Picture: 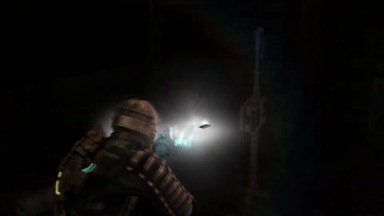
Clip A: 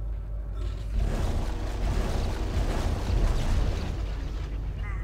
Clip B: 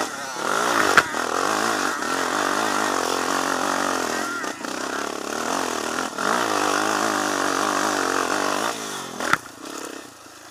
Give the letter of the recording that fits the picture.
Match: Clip A